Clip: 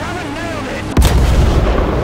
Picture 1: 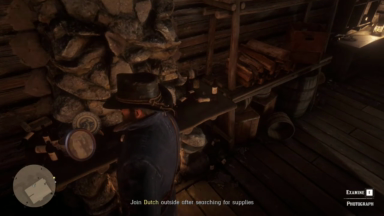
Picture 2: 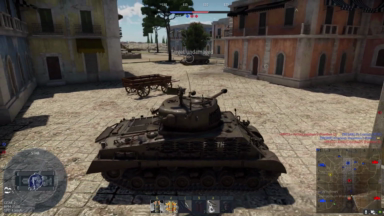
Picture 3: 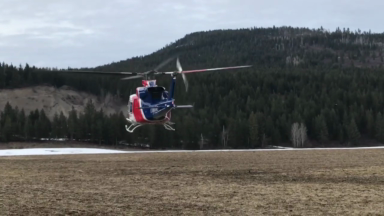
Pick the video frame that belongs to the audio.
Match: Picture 2